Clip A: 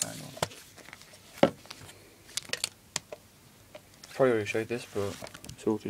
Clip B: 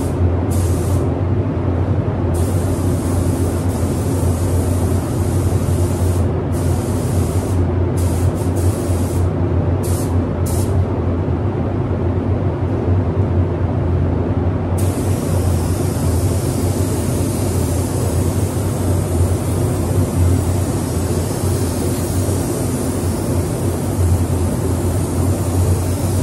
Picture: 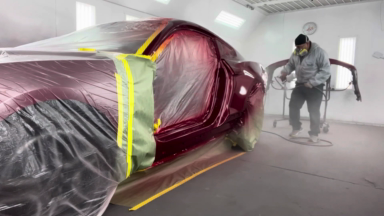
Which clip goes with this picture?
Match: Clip B